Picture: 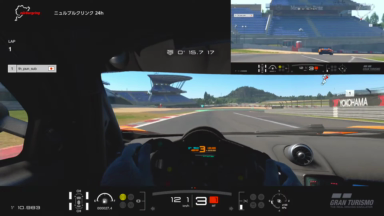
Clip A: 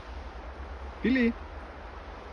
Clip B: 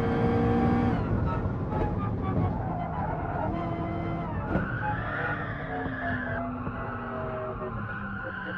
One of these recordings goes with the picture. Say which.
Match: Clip B